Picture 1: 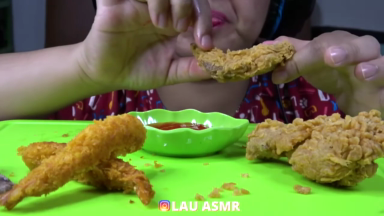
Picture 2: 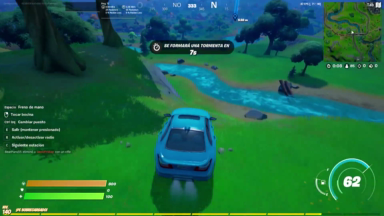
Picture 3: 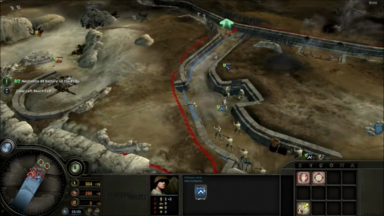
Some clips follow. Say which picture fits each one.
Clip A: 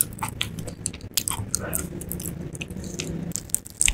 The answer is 1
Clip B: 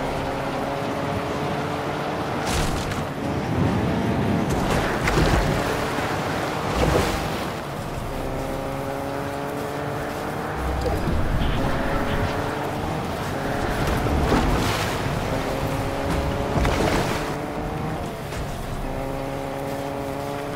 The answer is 2